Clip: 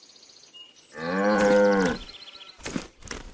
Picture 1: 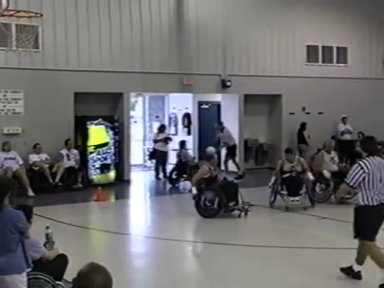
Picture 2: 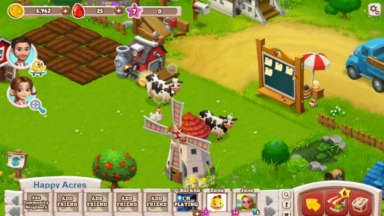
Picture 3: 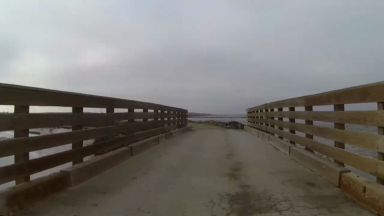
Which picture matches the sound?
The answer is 2